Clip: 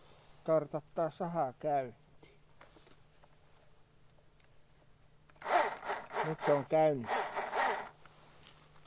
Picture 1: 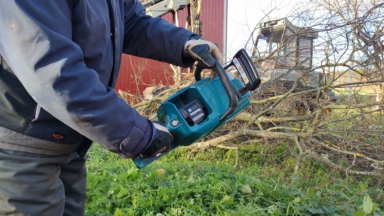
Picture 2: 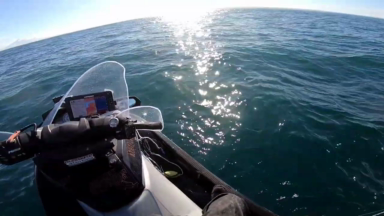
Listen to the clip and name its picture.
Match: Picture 1